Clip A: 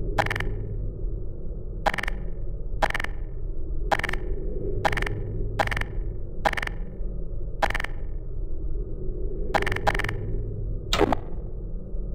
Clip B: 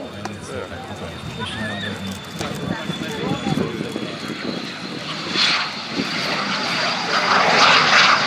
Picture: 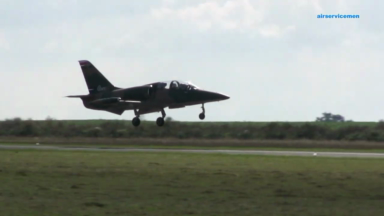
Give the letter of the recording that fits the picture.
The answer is B